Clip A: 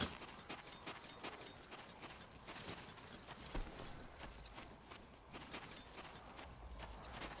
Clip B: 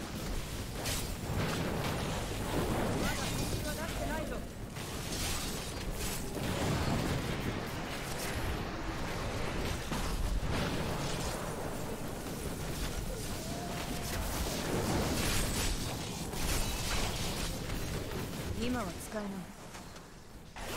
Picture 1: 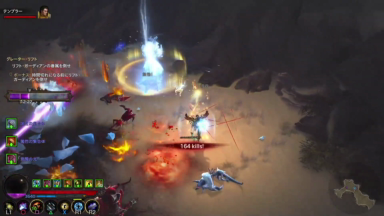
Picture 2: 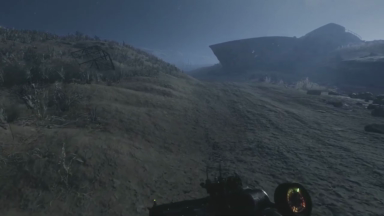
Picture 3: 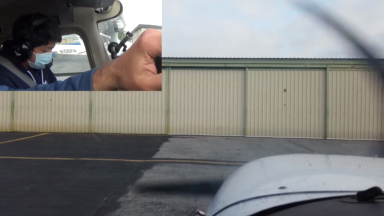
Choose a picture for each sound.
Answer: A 2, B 1